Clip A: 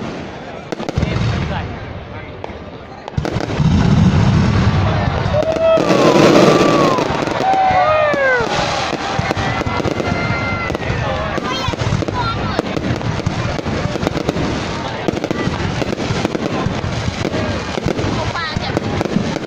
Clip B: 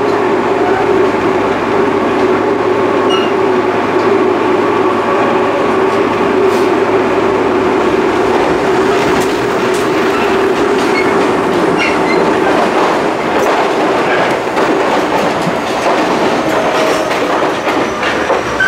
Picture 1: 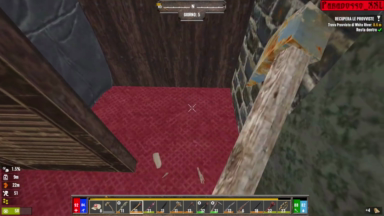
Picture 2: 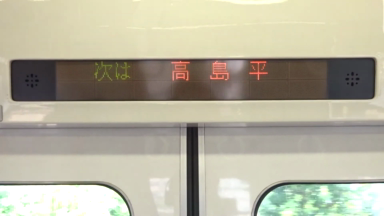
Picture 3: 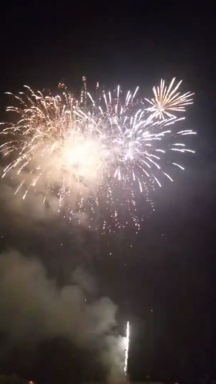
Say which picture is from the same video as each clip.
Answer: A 3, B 2